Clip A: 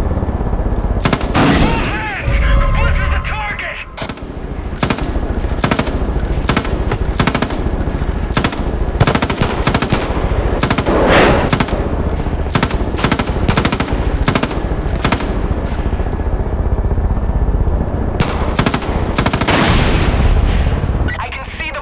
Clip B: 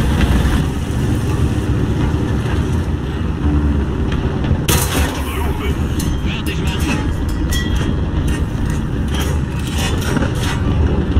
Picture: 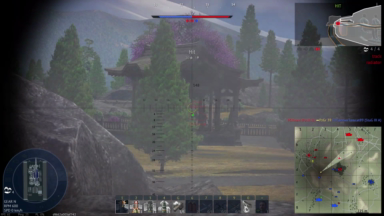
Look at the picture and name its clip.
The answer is B